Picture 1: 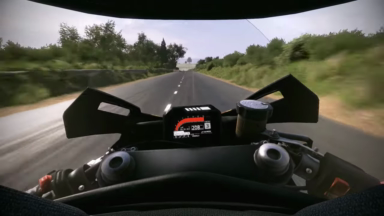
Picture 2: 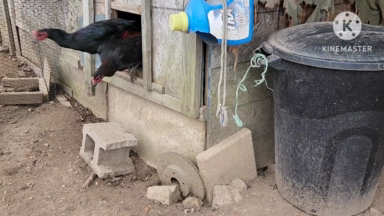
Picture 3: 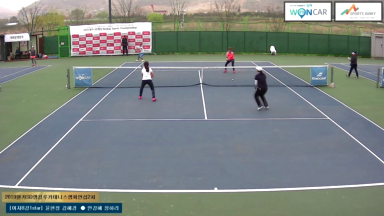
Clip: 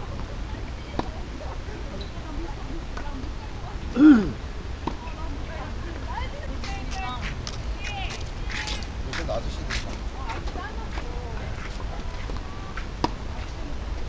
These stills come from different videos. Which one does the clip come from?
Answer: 3